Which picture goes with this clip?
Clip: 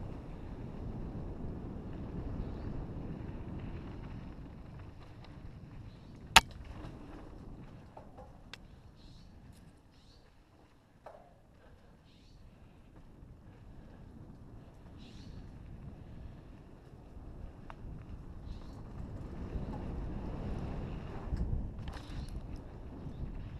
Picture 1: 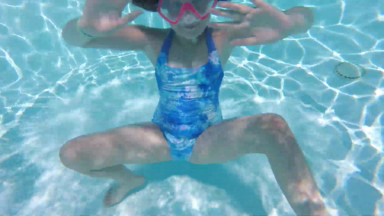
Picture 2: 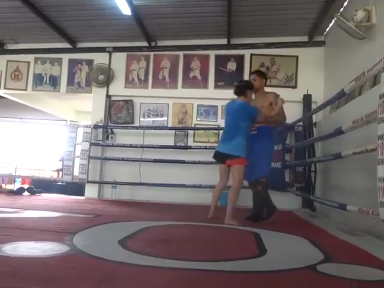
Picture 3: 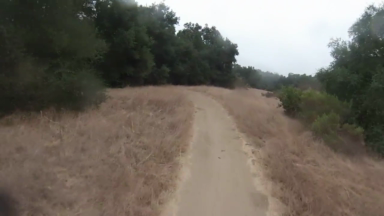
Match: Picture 3